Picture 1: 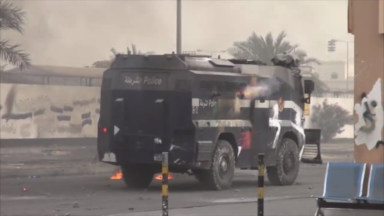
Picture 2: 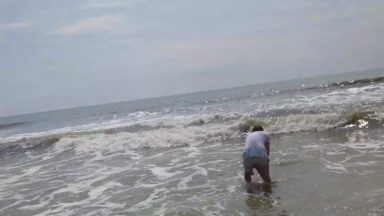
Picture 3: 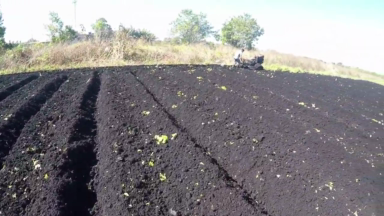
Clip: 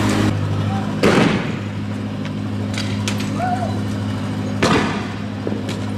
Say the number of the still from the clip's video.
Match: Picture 1